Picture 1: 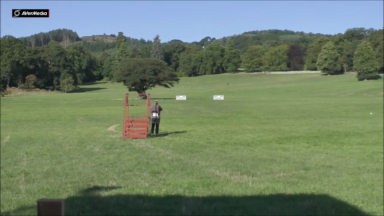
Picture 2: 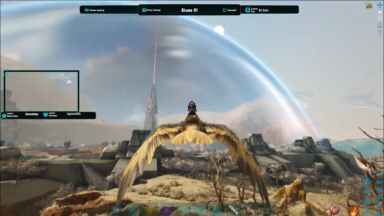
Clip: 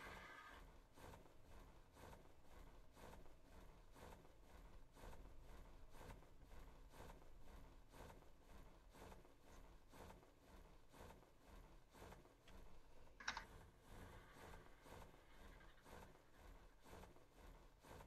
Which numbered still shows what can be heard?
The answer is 2